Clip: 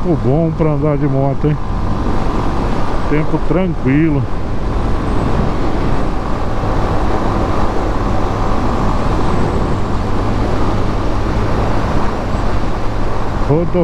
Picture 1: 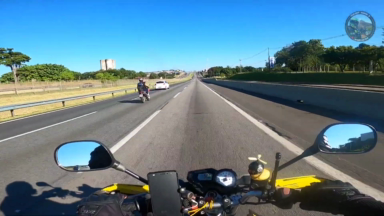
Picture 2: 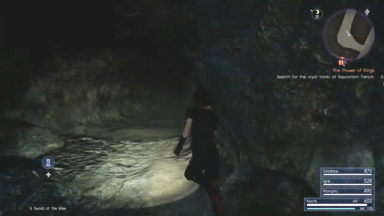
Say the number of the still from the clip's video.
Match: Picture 1